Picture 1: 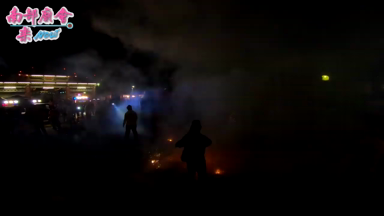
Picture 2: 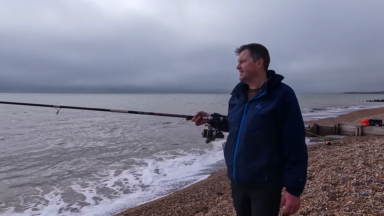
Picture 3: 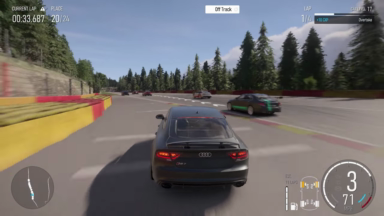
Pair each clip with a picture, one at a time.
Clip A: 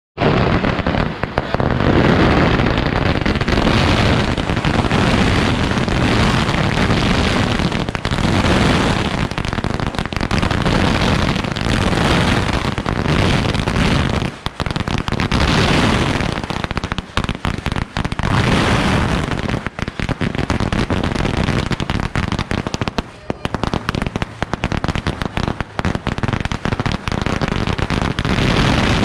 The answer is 1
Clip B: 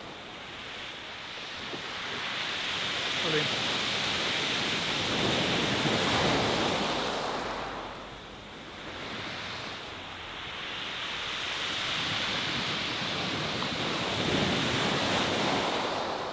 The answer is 2